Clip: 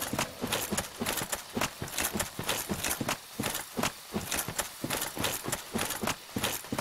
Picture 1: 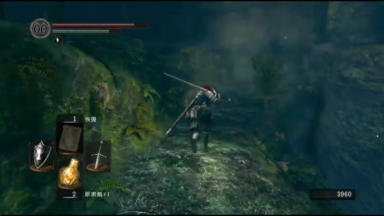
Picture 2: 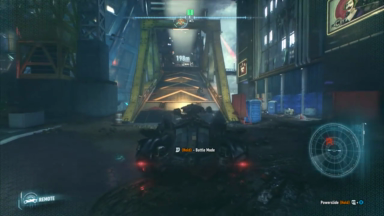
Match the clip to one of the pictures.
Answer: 1